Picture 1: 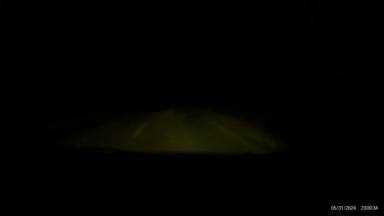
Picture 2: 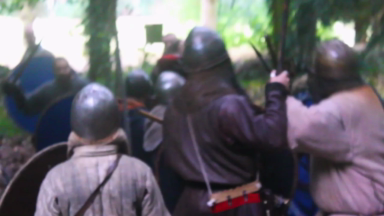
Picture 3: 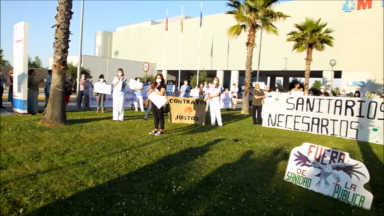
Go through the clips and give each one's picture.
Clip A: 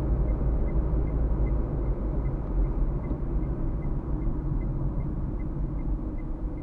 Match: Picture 1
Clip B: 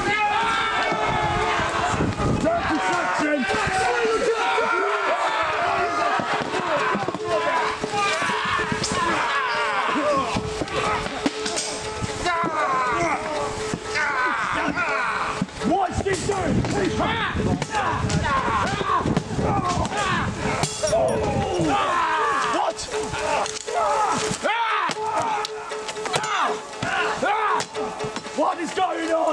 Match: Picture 2